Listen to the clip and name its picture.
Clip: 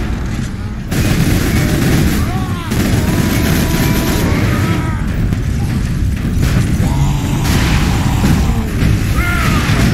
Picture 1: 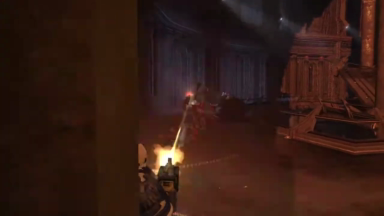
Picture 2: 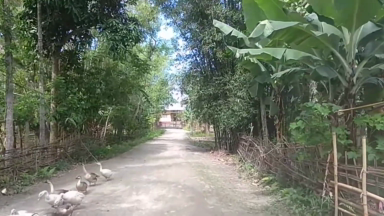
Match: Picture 1